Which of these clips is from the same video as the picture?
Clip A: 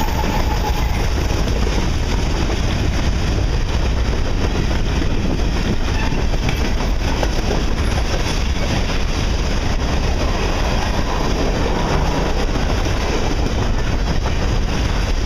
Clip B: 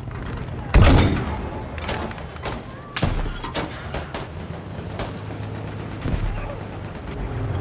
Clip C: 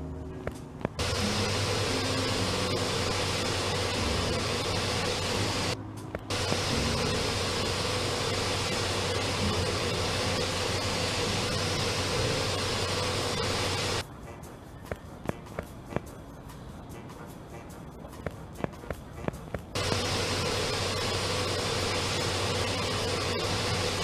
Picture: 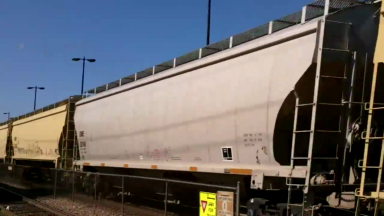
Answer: A